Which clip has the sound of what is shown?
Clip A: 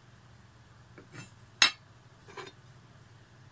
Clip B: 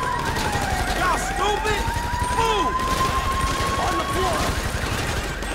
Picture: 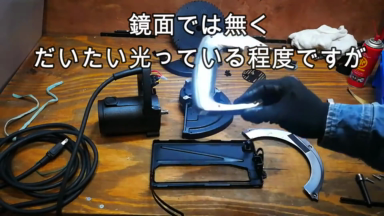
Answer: A